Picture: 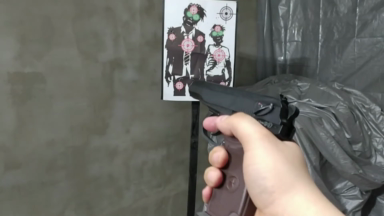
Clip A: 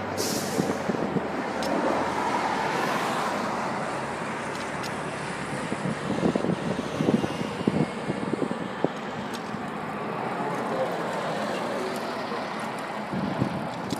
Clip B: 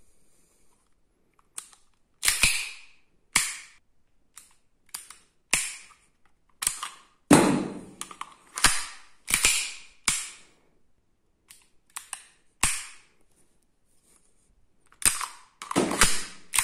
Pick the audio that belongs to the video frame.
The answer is B